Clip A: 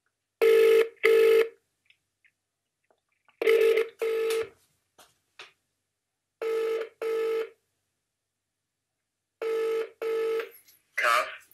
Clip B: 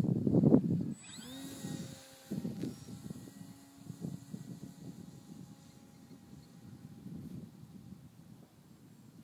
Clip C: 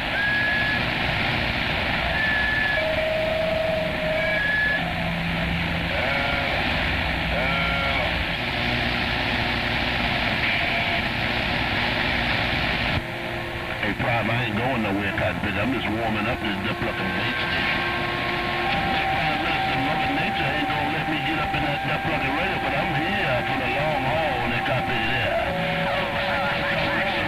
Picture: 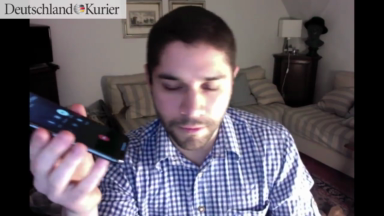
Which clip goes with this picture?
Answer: A